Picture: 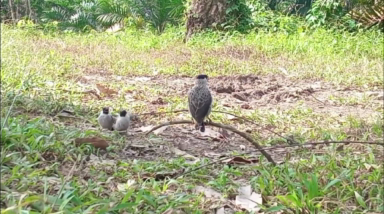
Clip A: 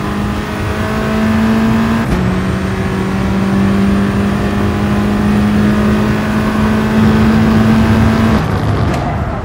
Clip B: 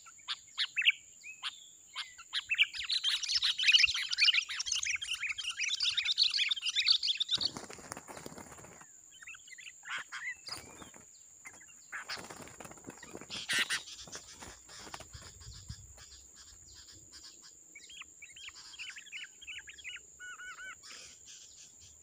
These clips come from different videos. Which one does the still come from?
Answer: B